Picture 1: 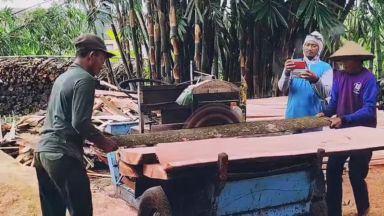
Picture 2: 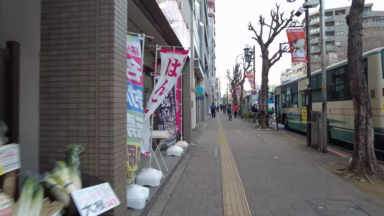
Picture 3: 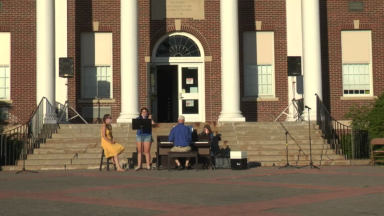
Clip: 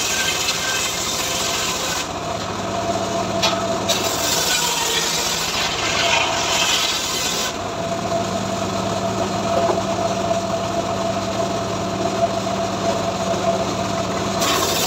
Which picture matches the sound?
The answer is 1